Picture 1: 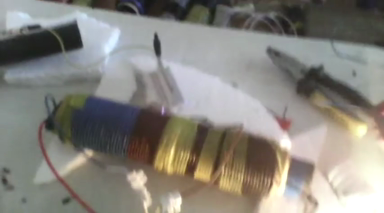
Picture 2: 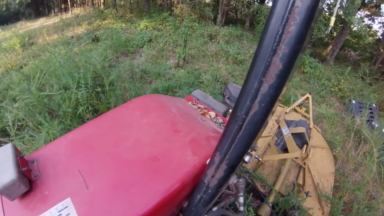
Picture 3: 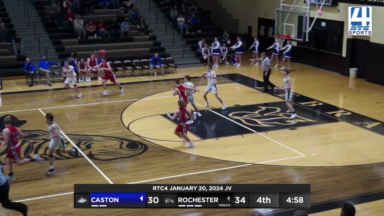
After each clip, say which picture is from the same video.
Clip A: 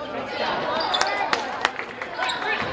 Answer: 3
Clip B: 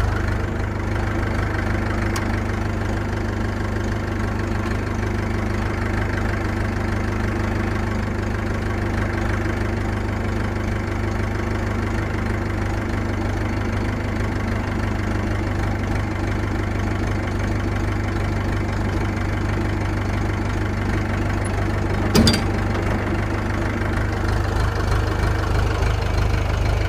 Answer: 2